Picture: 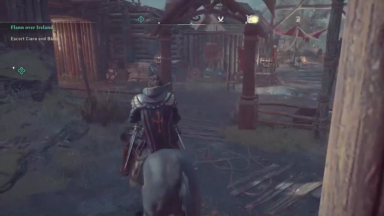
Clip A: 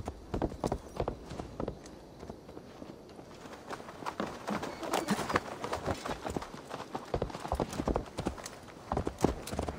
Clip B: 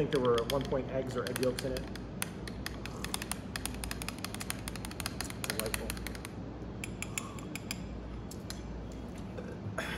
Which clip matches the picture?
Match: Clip A